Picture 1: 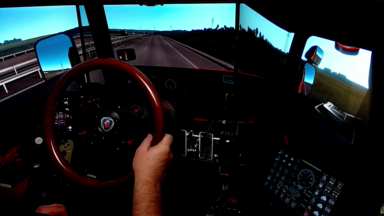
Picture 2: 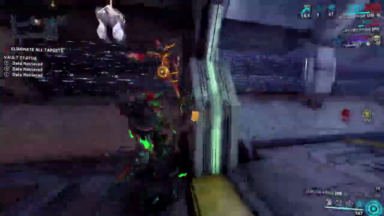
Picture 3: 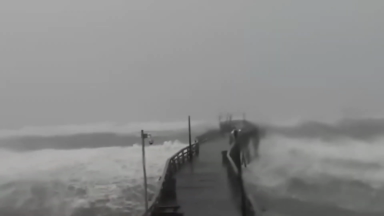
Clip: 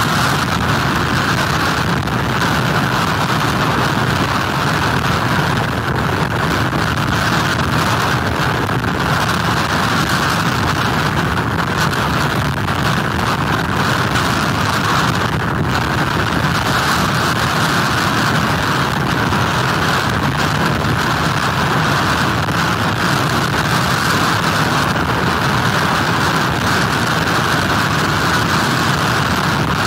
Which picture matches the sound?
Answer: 3